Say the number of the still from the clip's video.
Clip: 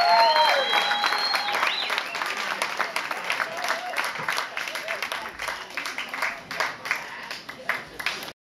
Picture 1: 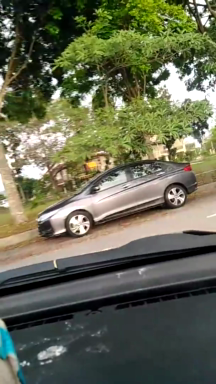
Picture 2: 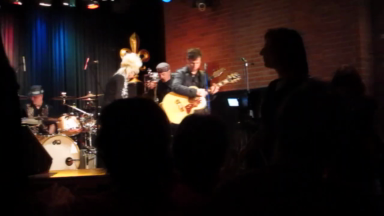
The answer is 2